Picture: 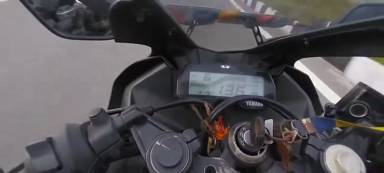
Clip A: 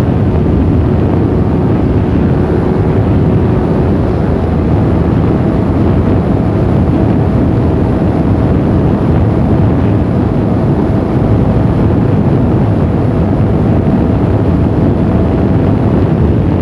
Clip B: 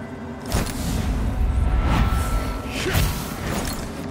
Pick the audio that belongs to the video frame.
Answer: A